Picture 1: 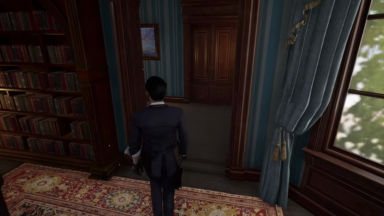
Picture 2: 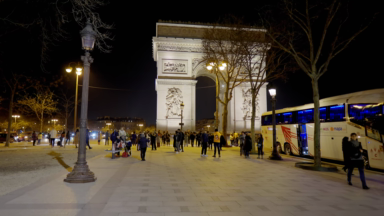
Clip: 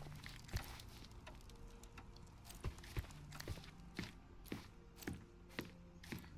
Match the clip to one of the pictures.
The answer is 1